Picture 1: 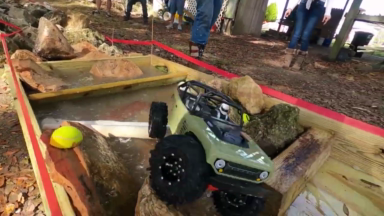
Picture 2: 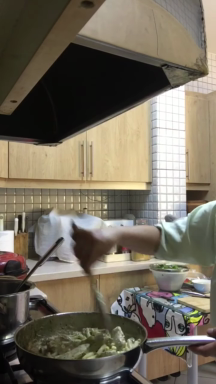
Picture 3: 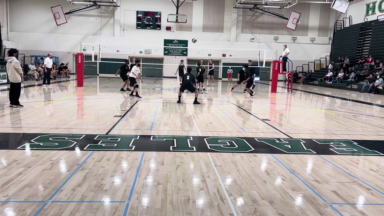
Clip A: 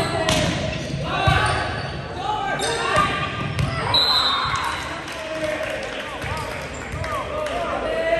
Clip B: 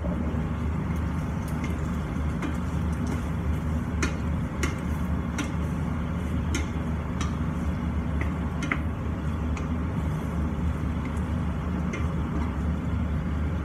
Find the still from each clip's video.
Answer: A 3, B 2